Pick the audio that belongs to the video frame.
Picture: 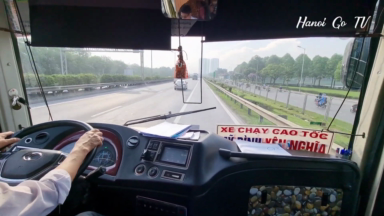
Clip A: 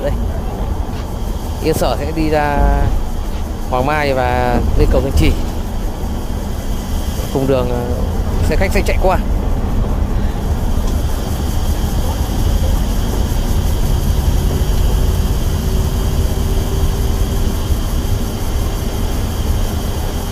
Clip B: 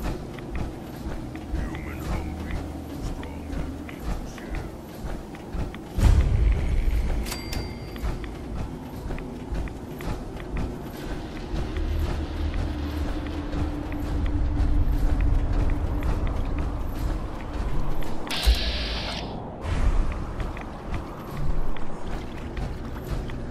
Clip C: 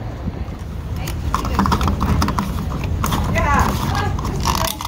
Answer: A